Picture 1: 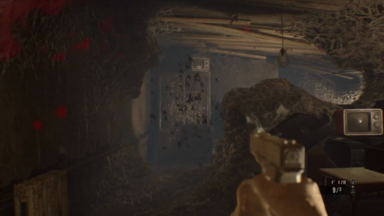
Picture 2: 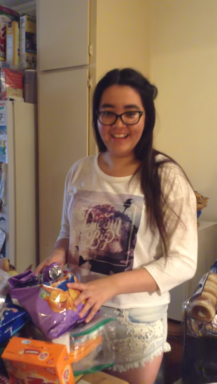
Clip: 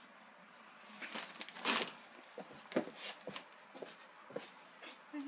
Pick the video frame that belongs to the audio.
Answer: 2